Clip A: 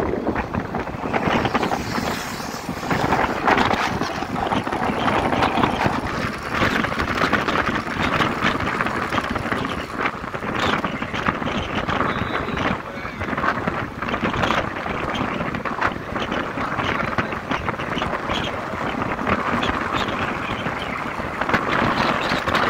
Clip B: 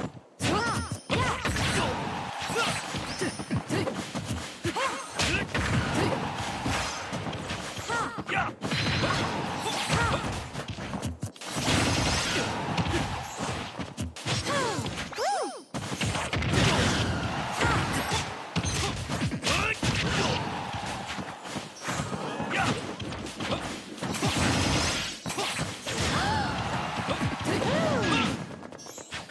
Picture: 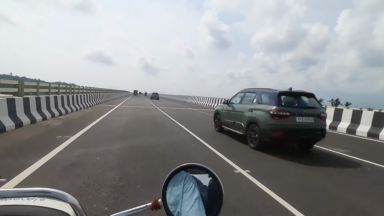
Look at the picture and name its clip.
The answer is A